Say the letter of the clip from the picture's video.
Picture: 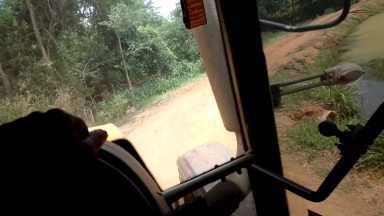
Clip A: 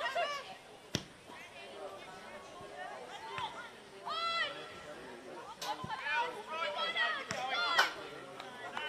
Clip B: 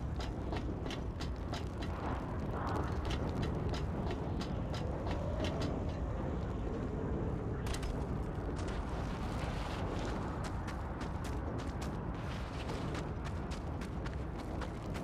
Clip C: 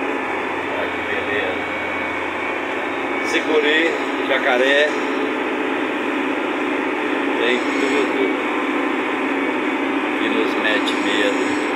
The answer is C